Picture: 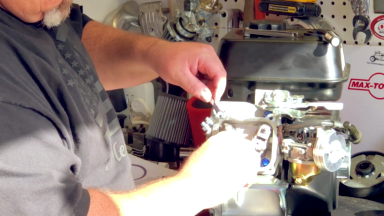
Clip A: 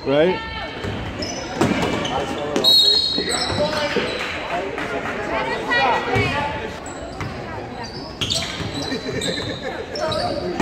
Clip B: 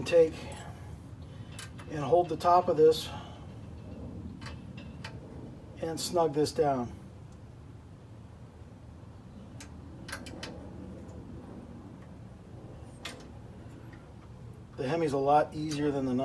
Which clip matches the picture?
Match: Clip B